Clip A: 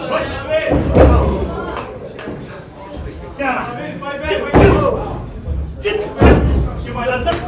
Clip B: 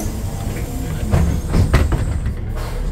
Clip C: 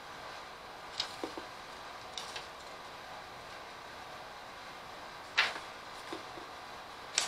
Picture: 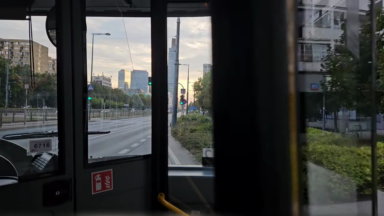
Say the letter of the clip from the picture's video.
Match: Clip B